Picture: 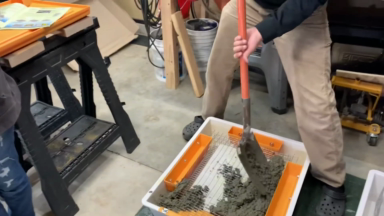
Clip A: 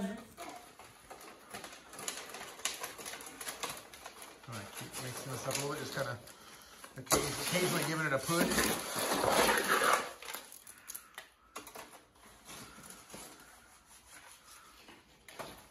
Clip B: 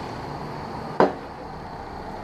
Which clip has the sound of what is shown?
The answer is A